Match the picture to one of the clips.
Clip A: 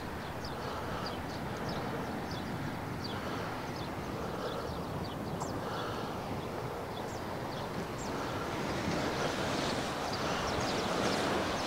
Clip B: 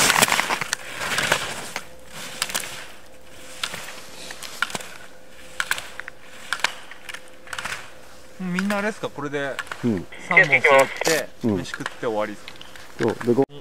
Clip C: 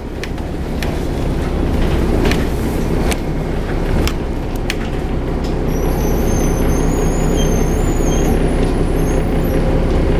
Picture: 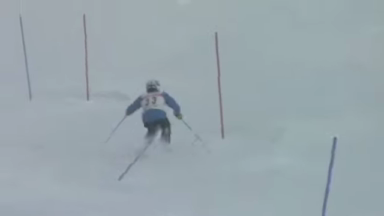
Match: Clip B